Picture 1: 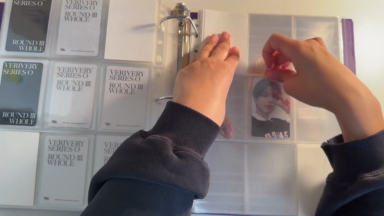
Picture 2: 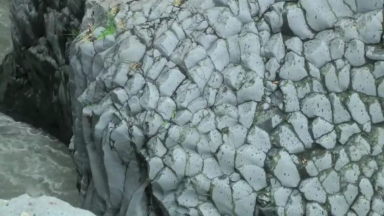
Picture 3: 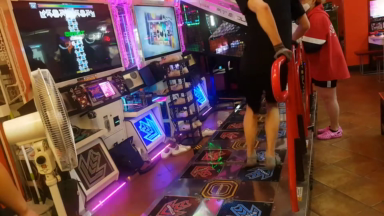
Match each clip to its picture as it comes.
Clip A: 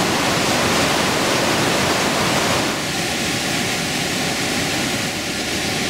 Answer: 2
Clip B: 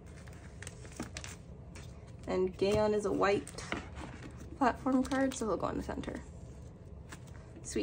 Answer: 1